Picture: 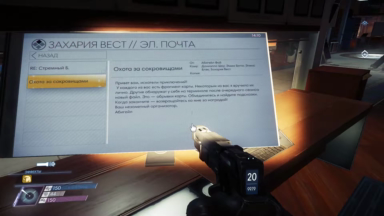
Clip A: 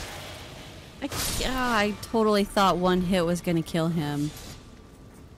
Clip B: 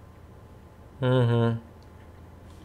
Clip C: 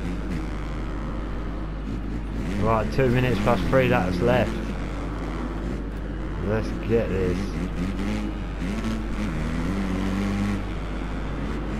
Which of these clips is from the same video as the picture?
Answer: B